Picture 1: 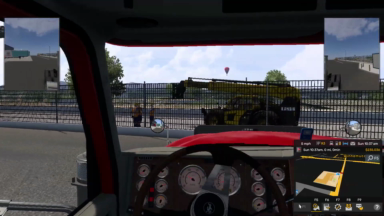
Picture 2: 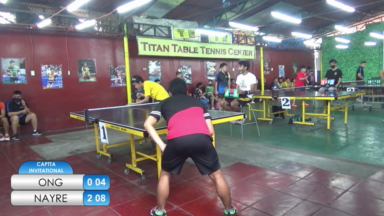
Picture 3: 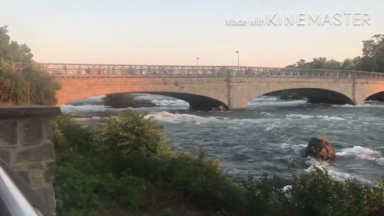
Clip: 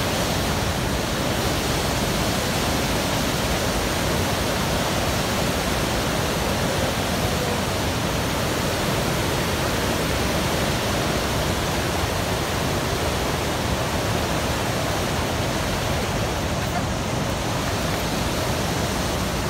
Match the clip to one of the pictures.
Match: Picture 3